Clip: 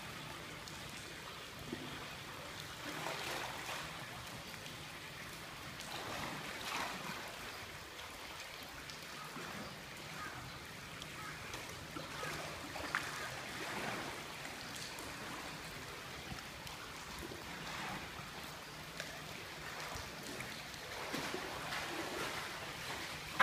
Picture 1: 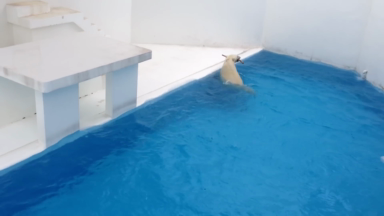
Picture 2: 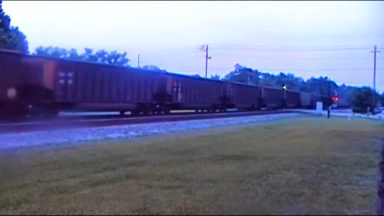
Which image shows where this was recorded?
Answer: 1